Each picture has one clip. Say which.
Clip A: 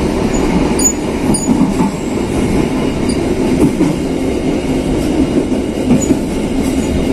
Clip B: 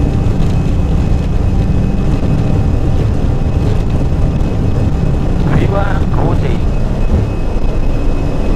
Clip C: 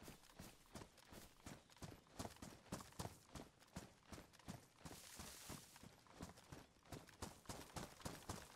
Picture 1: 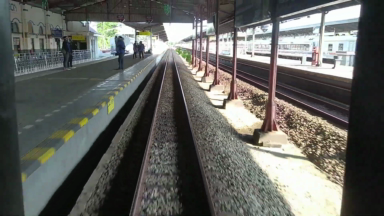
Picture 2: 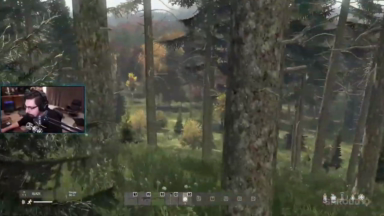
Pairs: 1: A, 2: C